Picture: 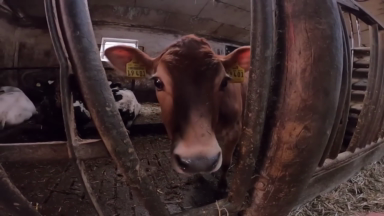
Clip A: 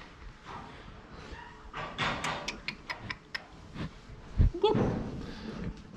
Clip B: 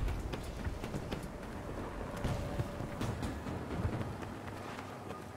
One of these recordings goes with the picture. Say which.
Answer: A